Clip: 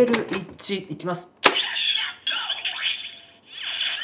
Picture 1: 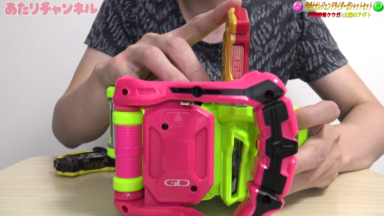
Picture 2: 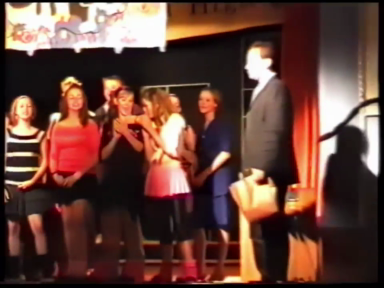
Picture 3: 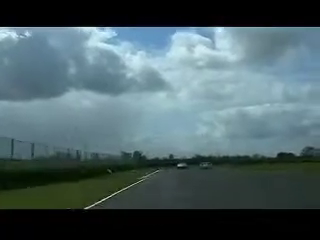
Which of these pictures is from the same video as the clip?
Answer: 1